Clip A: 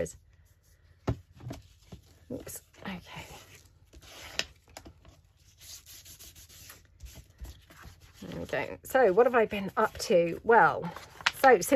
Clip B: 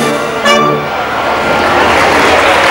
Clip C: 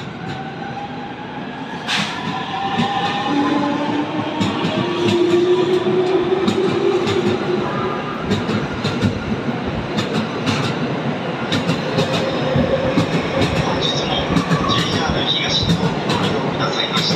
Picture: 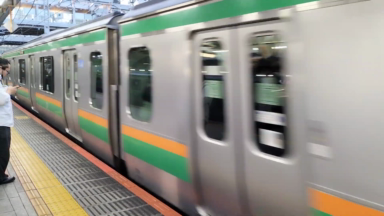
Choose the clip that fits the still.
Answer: C